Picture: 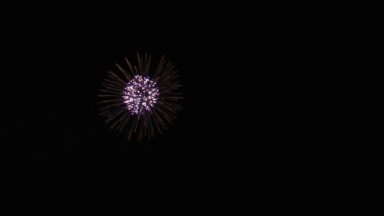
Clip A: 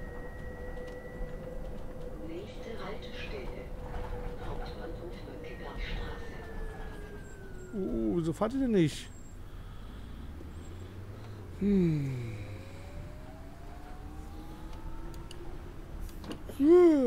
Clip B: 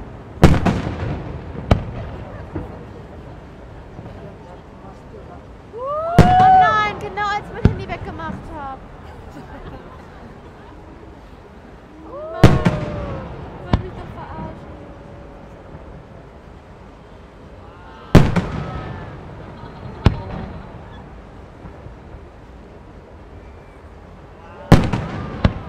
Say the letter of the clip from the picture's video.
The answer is B